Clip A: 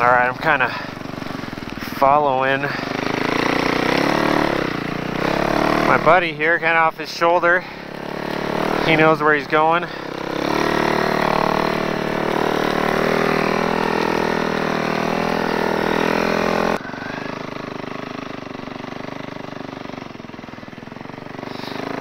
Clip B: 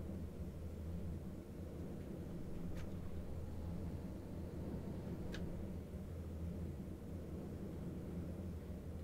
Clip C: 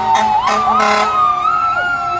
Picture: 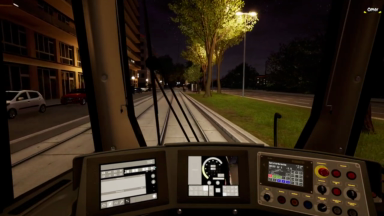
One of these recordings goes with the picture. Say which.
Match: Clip B